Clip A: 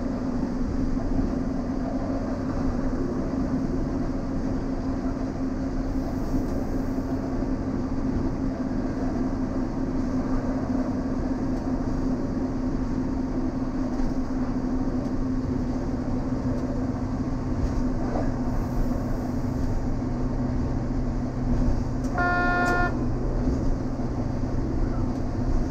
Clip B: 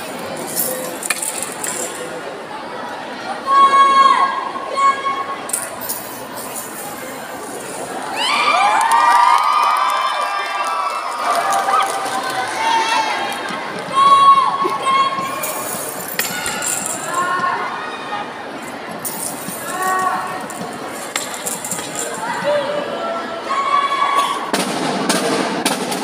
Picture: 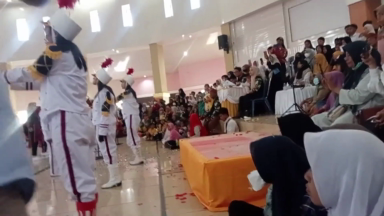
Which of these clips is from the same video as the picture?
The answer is B